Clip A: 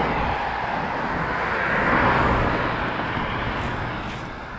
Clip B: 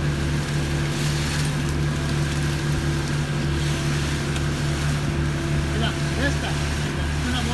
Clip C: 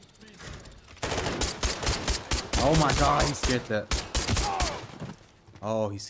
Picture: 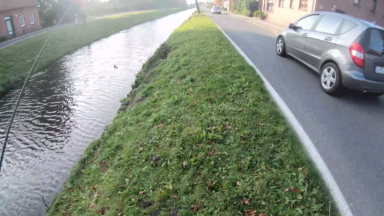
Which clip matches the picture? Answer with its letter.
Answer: A